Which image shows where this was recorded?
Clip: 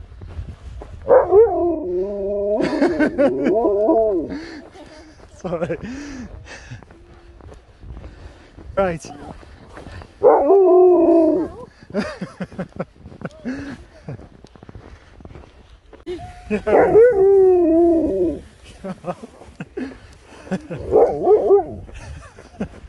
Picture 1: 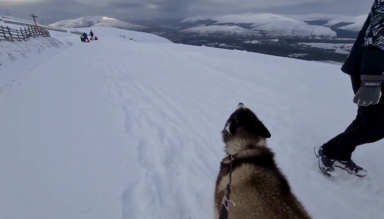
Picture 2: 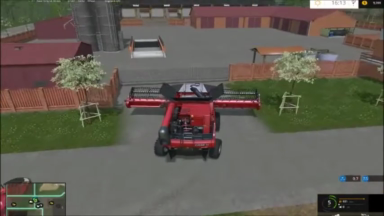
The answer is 1